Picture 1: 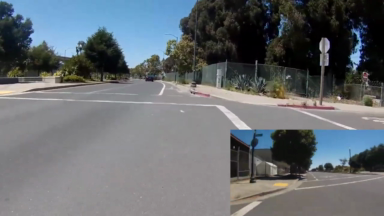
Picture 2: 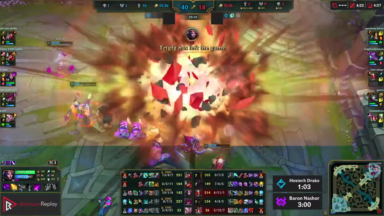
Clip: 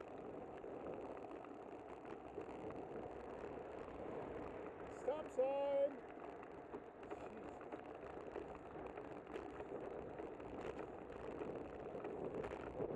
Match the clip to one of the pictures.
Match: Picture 1